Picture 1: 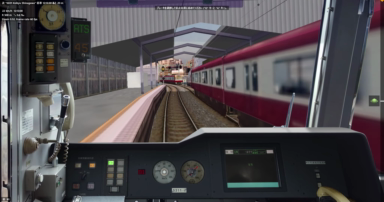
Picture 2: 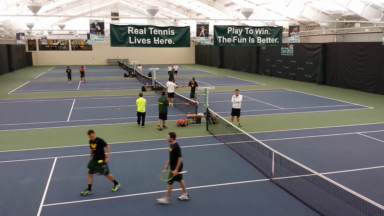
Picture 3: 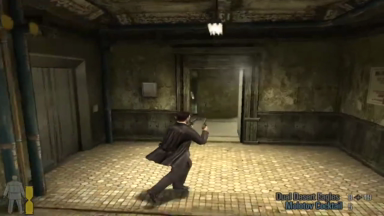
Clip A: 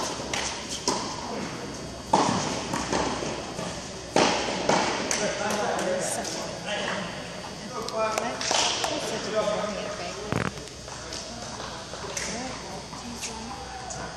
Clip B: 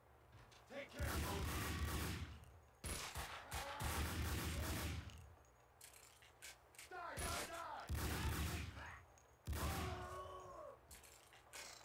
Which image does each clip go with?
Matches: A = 2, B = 3